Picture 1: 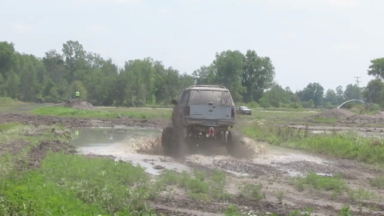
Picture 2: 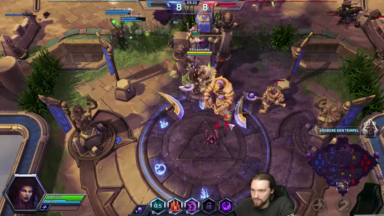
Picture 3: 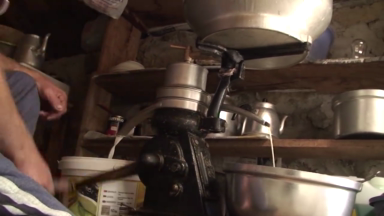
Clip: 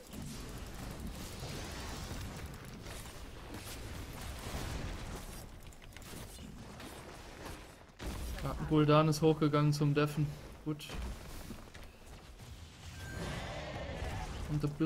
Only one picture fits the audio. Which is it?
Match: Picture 2